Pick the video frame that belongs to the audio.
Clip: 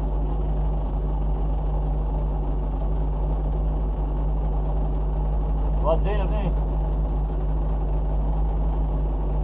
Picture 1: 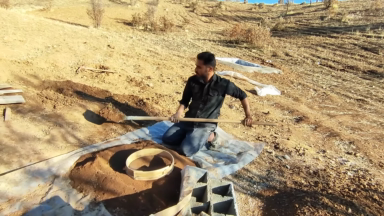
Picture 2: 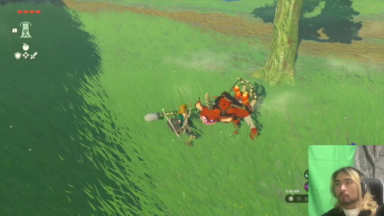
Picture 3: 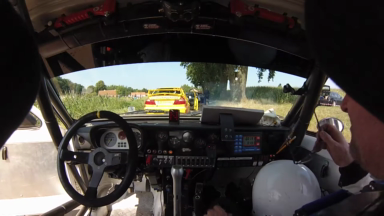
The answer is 3